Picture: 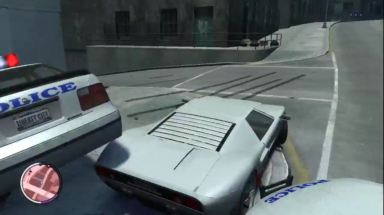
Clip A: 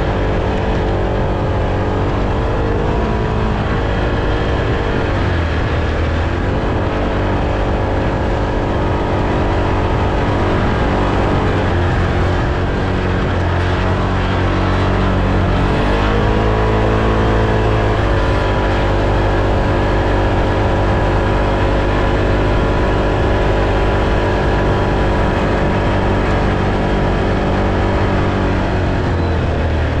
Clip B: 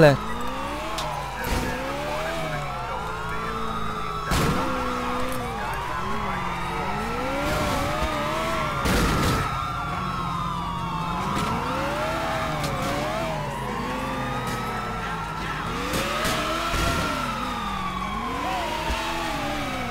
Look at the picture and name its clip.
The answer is B